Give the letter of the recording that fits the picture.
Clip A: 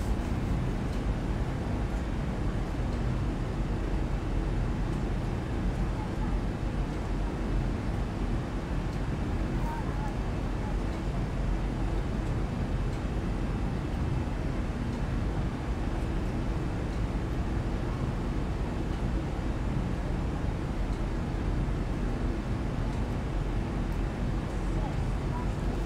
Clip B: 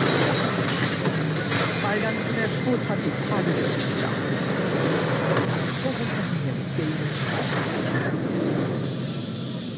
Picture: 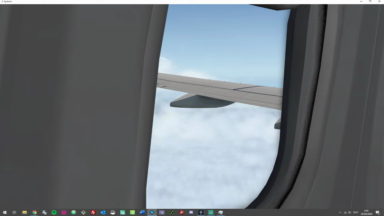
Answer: A